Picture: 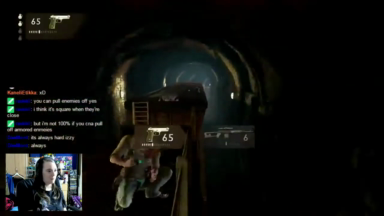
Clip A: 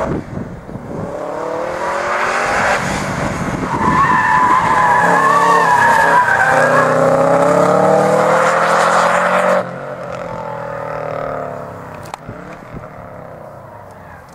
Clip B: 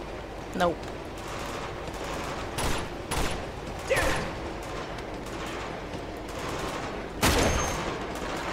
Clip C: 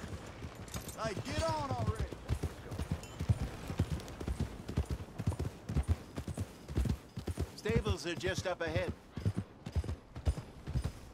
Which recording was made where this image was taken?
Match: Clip B